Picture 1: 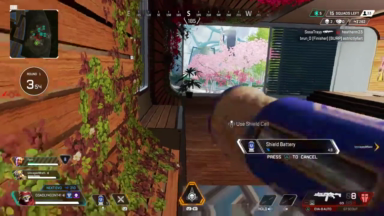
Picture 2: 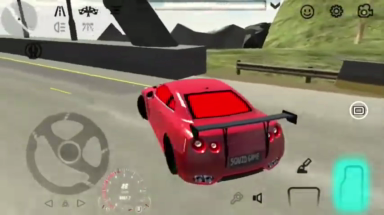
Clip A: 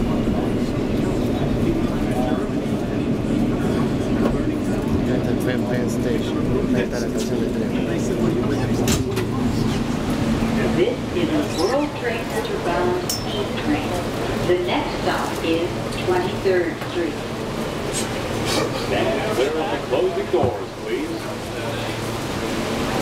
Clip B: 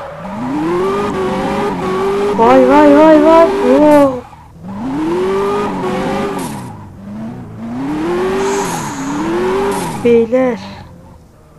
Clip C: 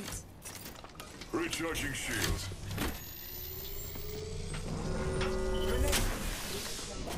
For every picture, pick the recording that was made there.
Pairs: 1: C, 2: B